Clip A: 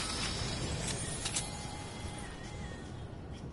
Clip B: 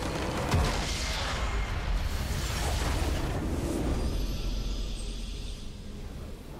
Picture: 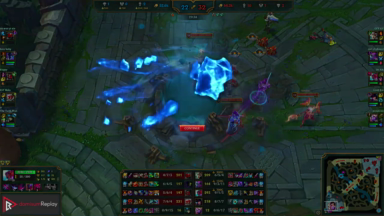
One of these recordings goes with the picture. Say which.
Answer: B